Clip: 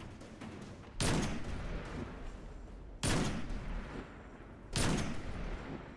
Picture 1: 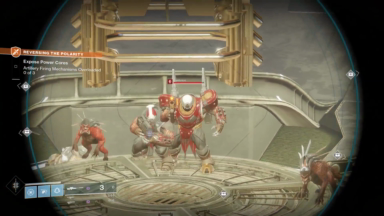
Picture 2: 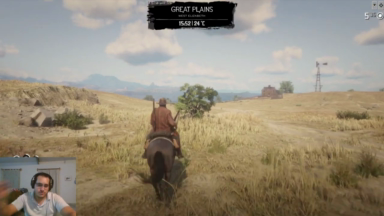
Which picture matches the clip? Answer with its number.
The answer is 1